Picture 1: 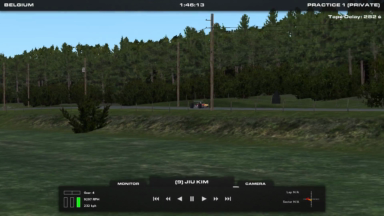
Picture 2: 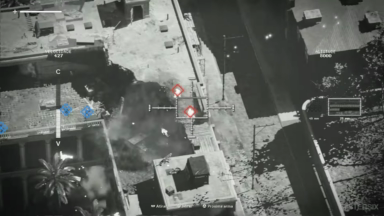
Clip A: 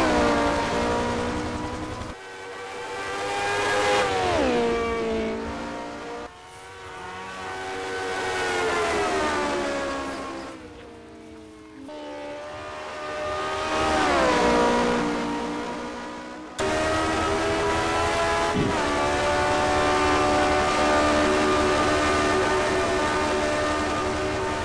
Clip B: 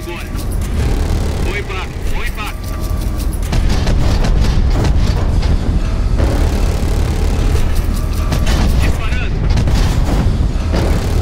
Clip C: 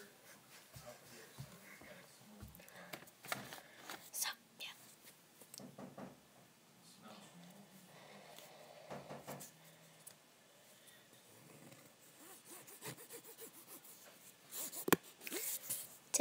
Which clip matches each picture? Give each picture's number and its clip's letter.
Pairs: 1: A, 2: B